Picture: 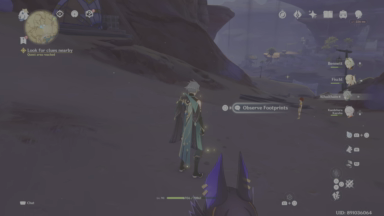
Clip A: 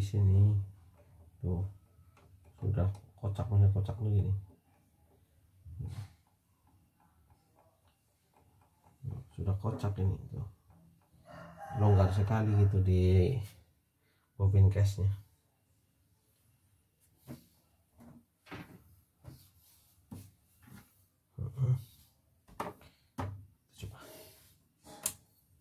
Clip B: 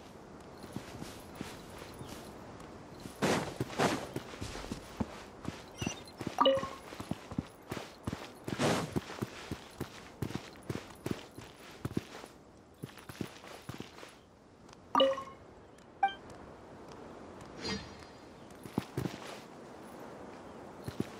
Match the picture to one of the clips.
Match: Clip B